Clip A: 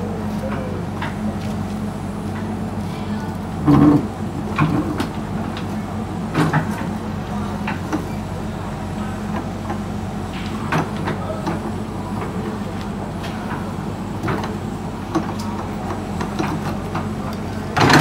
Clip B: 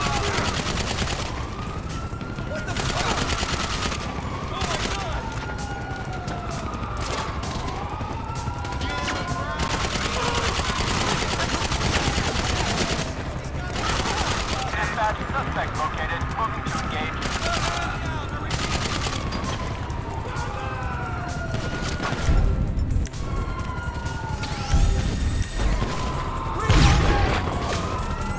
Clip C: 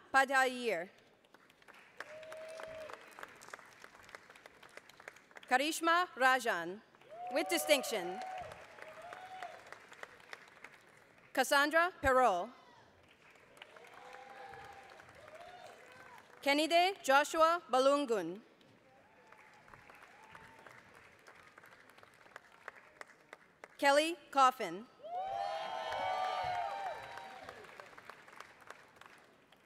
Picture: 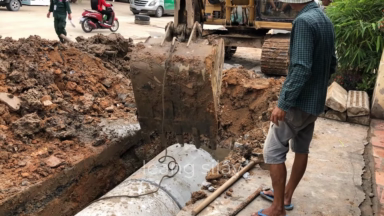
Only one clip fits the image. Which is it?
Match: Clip A